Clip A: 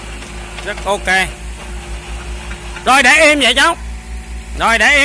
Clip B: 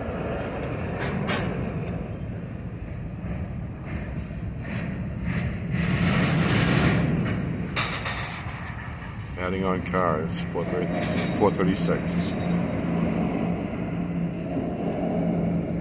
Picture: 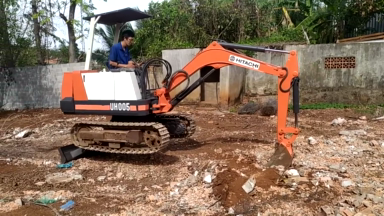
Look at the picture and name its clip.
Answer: A